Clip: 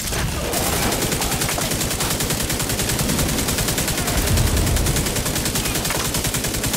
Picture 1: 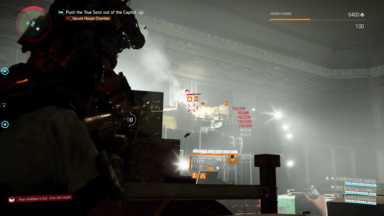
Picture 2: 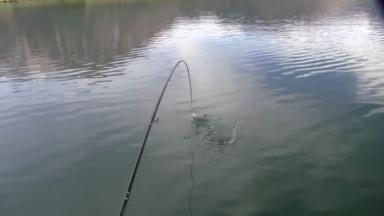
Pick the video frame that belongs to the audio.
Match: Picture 1